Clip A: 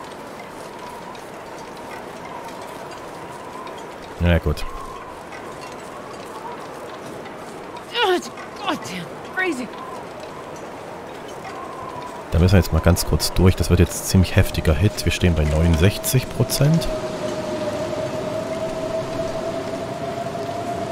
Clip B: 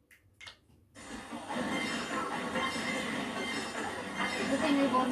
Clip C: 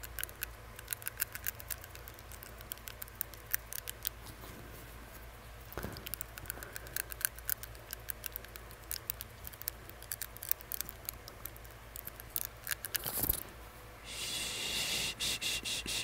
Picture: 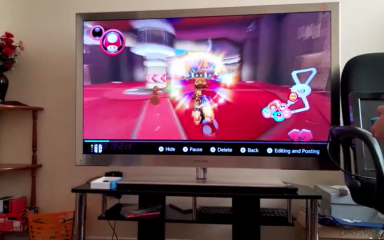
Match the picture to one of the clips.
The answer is B